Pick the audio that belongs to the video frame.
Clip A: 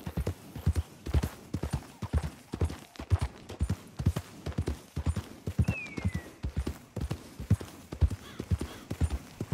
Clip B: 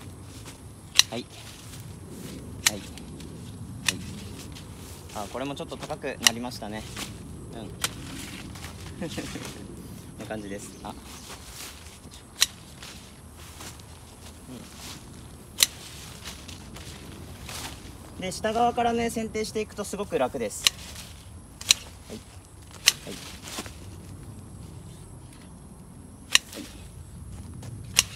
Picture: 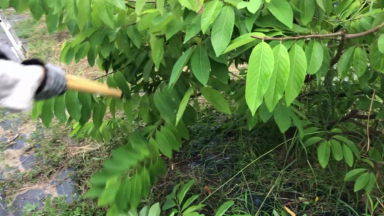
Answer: B